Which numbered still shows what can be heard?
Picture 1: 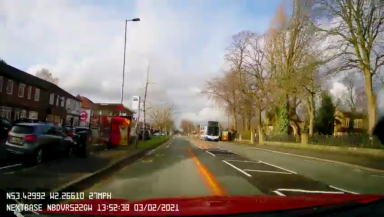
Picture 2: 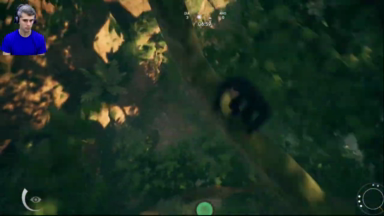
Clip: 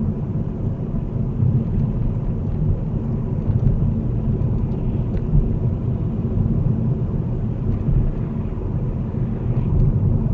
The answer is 1